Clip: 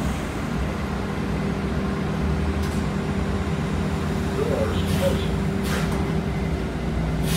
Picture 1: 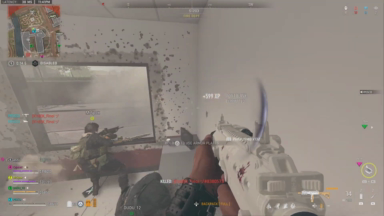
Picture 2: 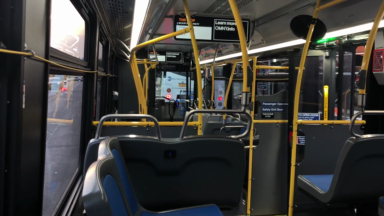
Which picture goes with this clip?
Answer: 2